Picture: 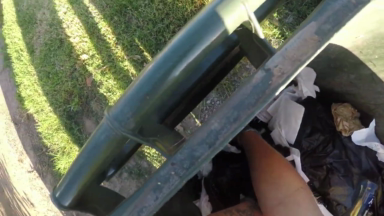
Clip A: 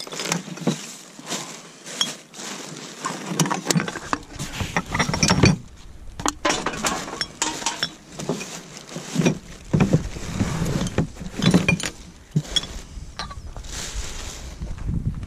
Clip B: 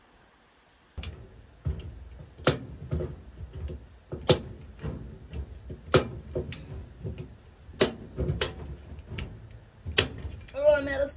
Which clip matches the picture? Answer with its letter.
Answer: A